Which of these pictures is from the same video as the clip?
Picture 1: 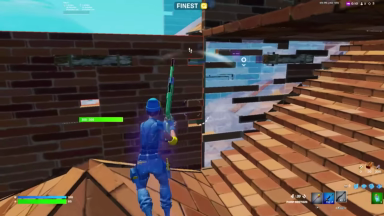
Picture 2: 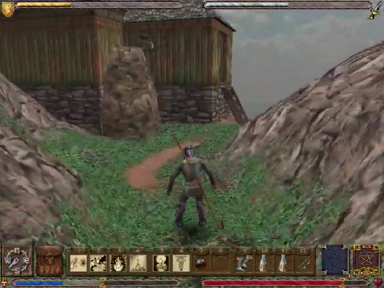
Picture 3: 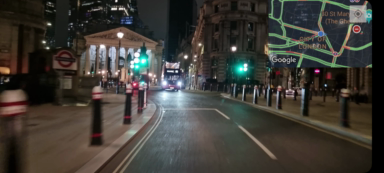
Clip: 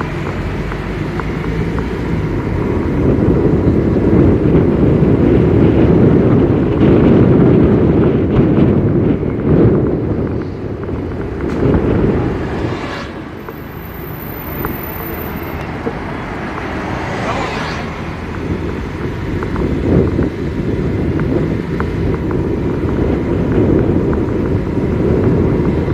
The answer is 3